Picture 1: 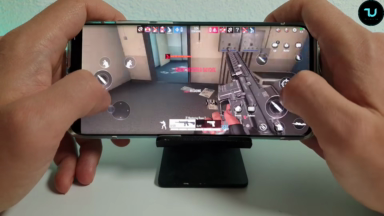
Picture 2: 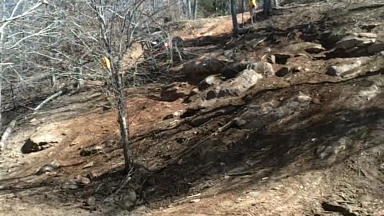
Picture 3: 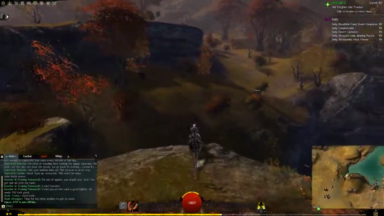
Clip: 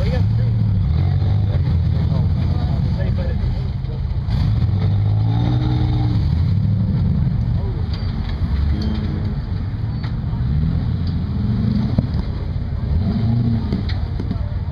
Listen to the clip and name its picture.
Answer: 2